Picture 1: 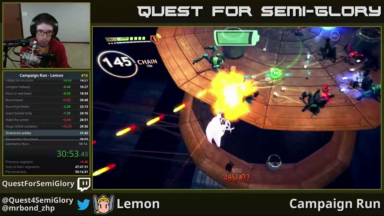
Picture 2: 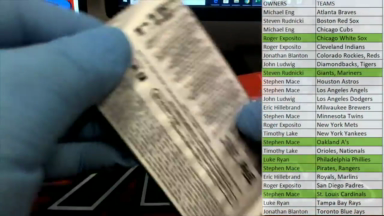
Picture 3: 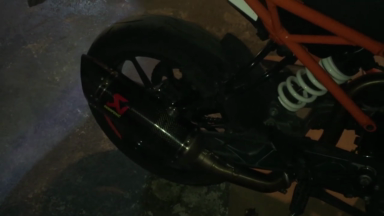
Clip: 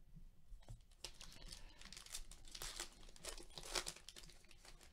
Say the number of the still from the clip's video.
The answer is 2